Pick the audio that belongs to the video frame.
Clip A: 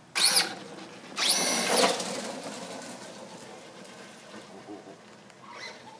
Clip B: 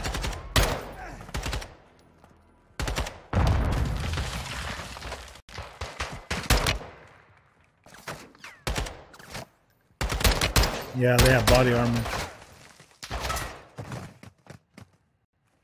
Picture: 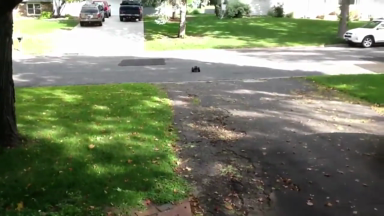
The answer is A